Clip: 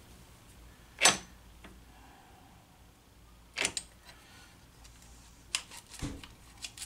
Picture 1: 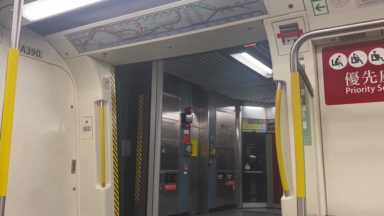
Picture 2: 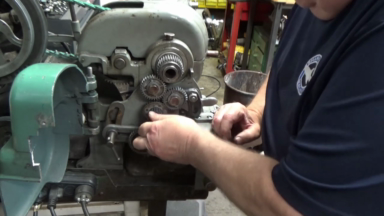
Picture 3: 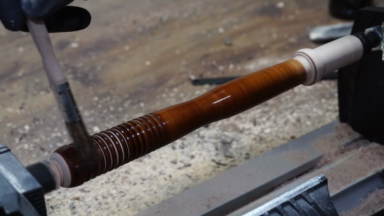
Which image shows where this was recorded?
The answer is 2